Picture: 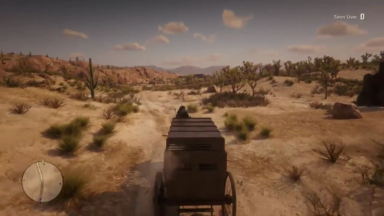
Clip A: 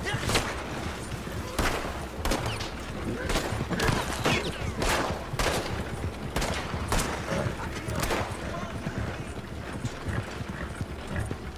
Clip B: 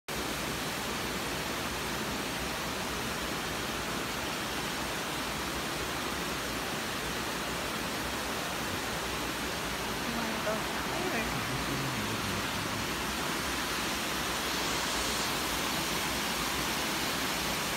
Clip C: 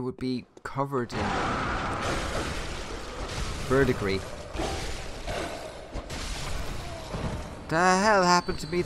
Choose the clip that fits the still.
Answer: A